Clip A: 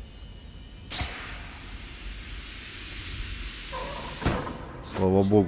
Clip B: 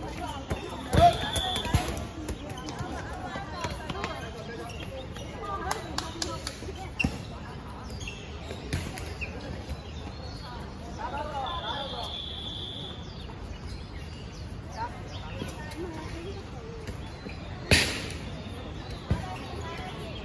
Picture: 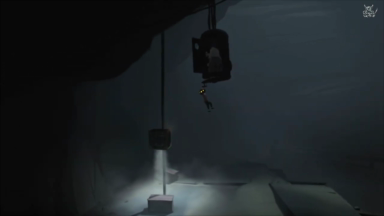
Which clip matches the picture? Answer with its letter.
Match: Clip A